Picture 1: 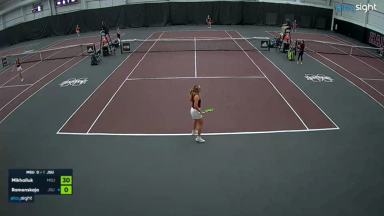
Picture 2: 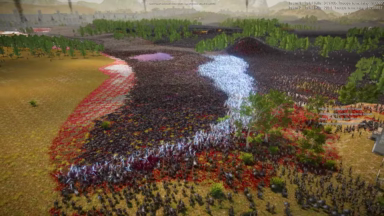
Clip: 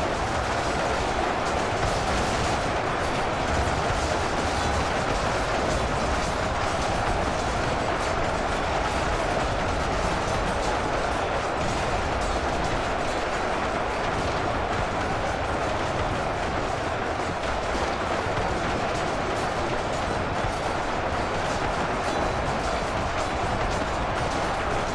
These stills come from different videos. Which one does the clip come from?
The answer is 2